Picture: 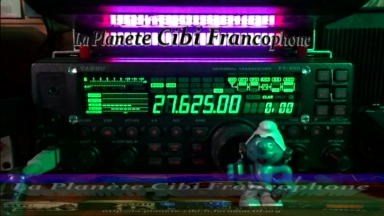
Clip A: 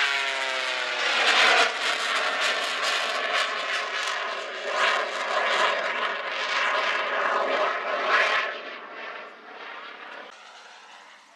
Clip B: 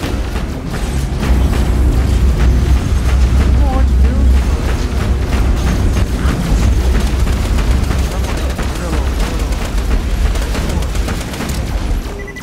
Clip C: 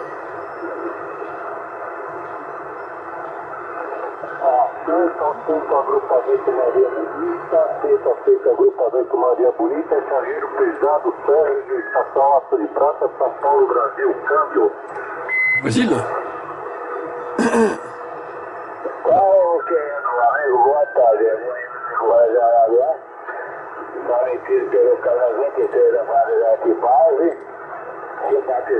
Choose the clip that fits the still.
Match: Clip C